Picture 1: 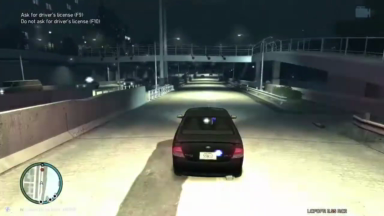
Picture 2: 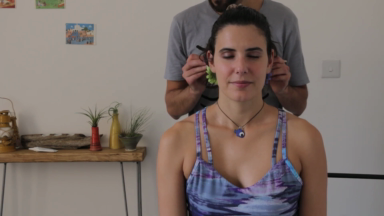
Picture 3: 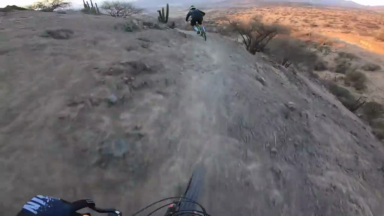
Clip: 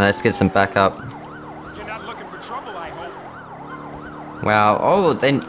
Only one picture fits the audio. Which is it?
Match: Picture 1